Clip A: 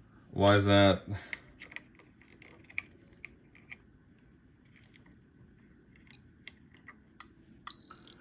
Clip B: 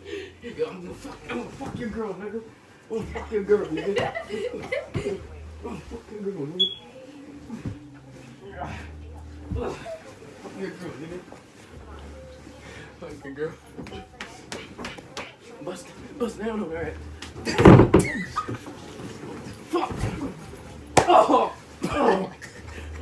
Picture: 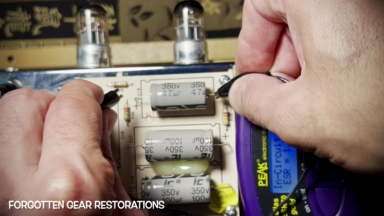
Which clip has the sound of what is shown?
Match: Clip A